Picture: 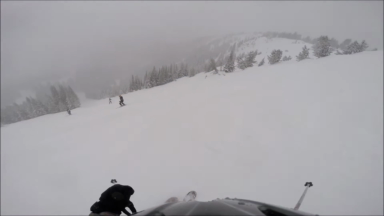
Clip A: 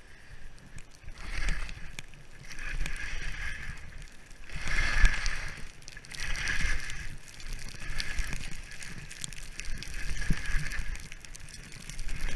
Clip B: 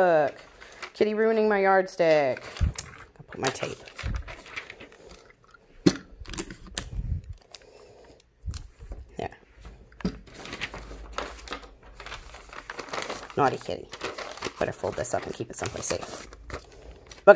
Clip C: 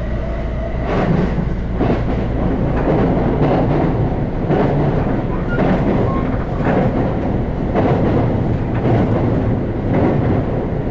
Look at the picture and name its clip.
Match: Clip A